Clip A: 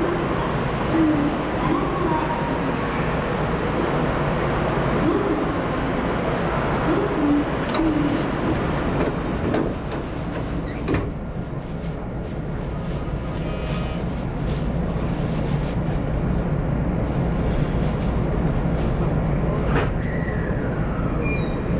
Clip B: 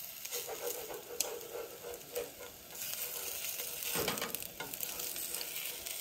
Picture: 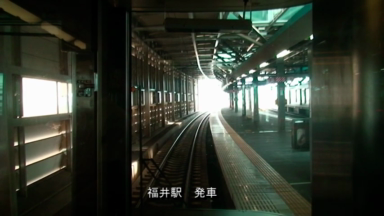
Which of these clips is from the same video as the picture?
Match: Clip A